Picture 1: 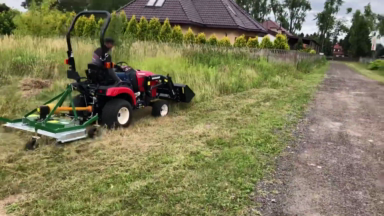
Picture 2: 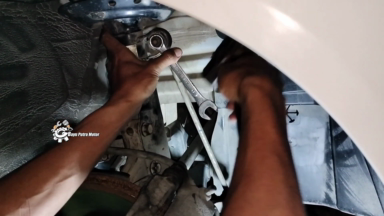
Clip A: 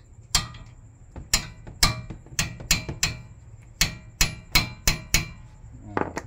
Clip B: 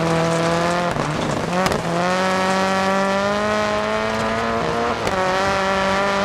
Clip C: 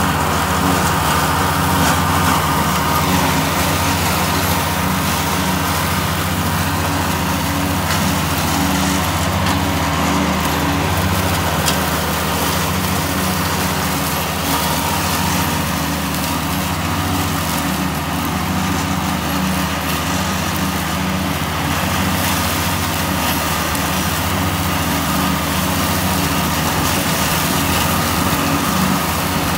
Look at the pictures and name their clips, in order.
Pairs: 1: C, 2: A